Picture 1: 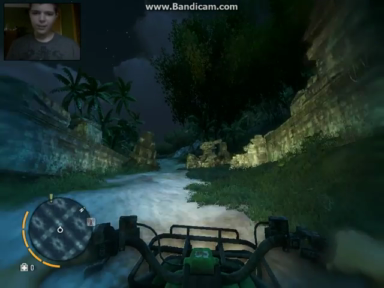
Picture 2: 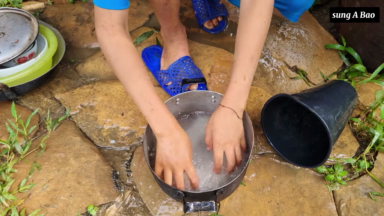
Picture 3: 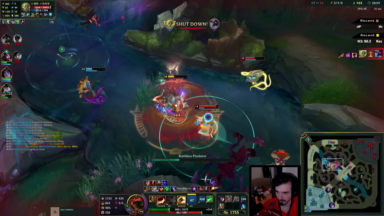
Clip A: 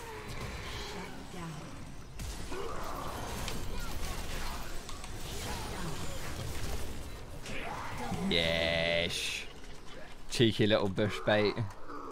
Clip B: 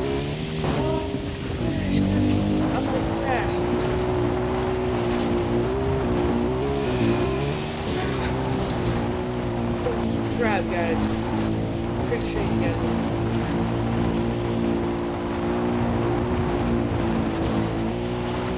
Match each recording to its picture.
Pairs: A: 3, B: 1